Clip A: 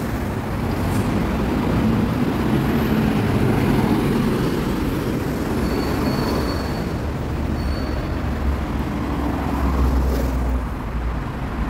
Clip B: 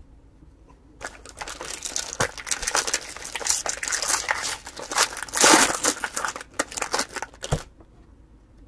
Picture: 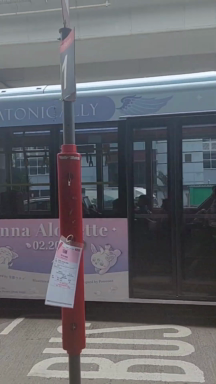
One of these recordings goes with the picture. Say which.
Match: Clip A